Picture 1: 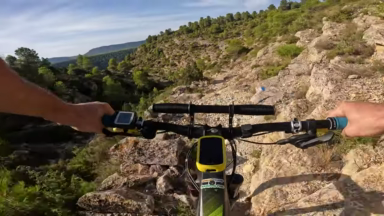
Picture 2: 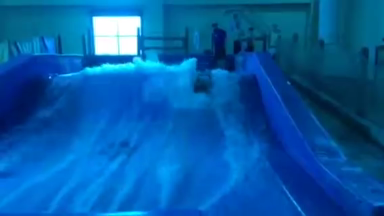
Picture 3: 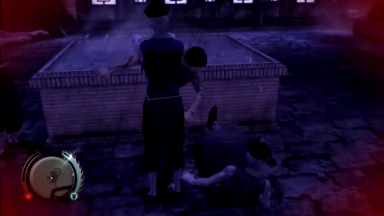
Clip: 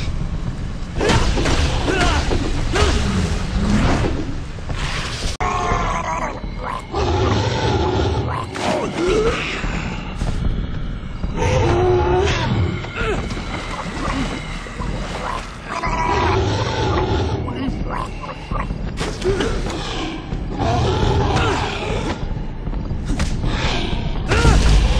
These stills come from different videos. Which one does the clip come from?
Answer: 3